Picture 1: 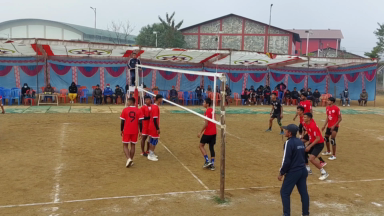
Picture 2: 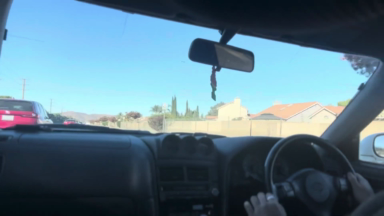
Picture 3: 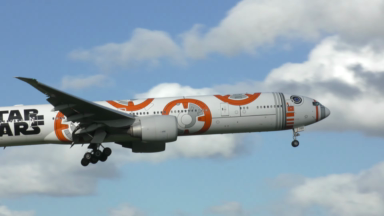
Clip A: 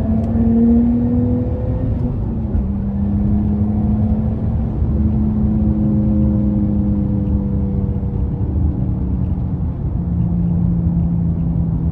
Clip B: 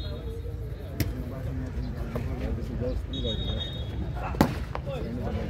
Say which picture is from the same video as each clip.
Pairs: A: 2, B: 1